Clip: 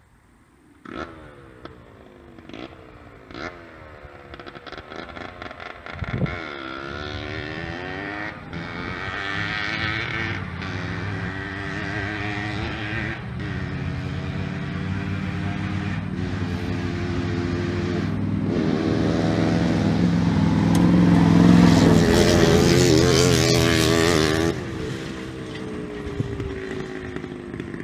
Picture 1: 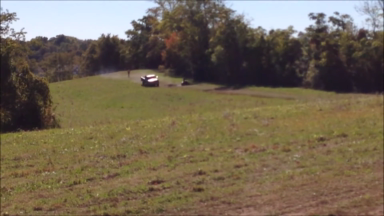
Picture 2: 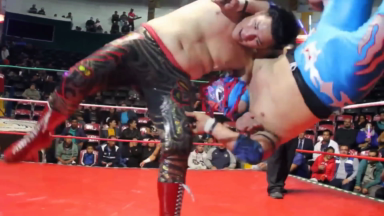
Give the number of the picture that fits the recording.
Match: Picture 1